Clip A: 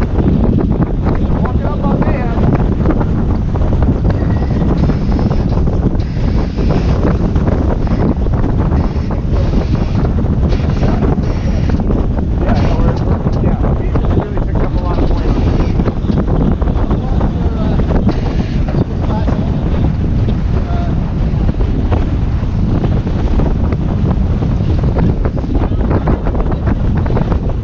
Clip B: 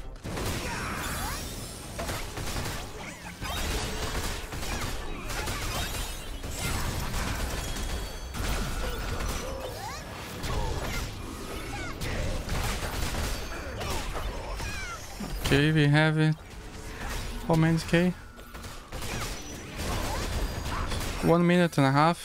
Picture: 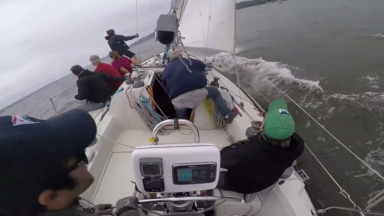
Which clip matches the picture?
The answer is A